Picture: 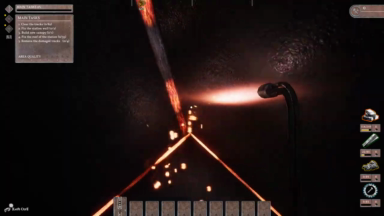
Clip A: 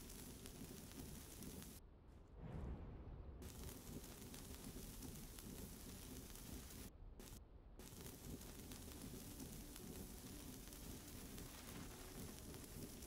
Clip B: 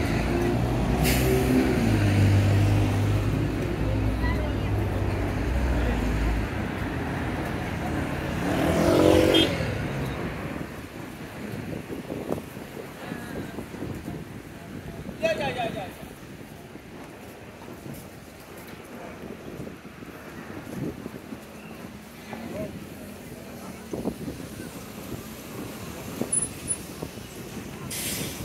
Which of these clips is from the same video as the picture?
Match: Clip A